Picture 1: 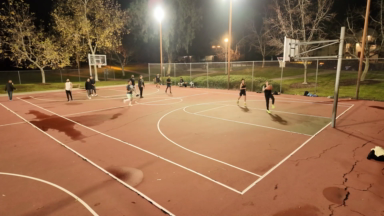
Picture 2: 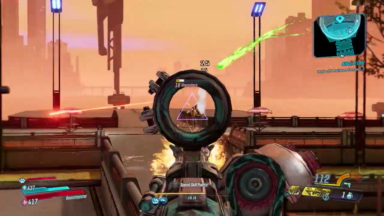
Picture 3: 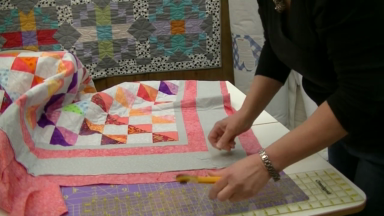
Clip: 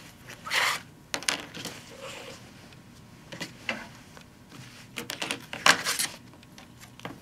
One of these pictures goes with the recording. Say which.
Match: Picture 3